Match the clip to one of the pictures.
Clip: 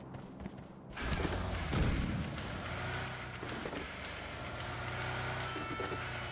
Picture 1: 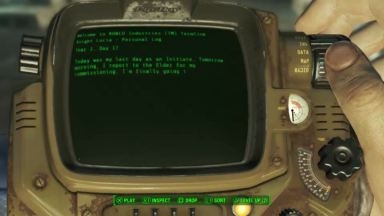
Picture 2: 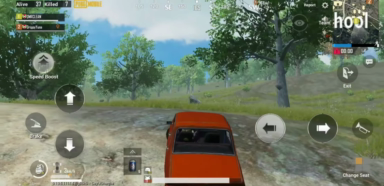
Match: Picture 2